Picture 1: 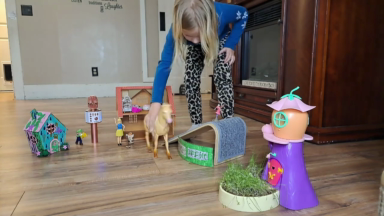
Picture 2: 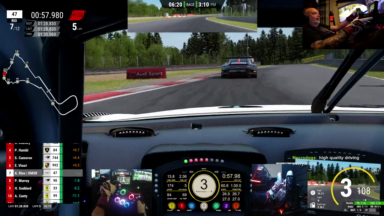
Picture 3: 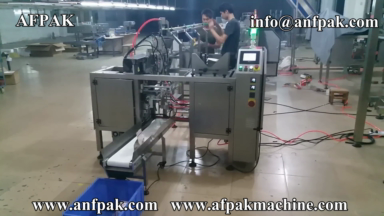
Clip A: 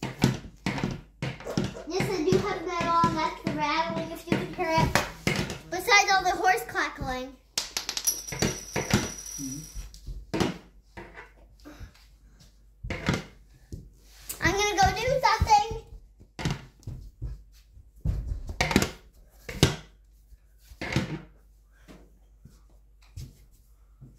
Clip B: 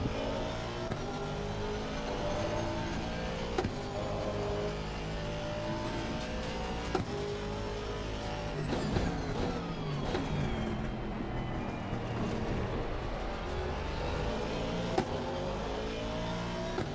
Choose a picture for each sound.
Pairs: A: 1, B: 2